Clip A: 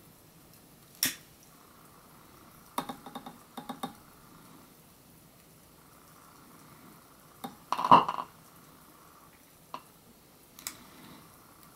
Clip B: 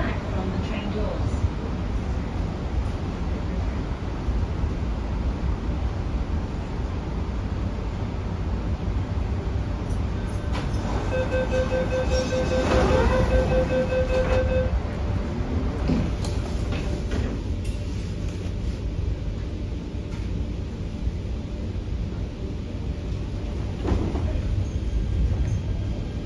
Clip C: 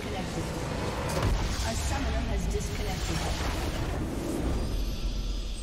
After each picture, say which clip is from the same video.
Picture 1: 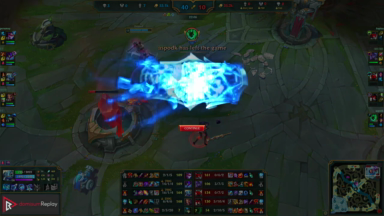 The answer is C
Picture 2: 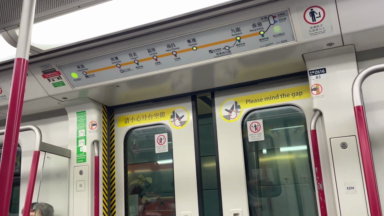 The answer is B